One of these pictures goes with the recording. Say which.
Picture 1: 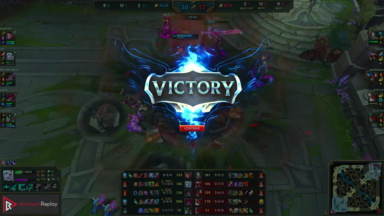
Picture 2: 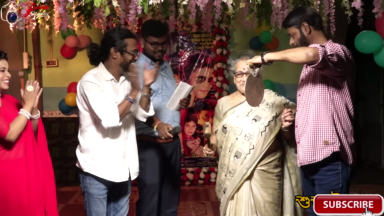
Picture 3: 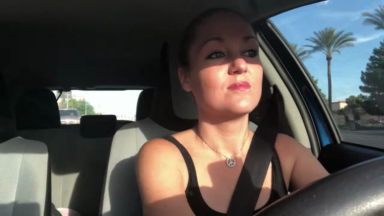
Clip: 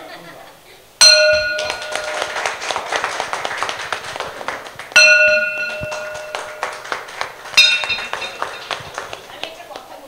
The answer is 2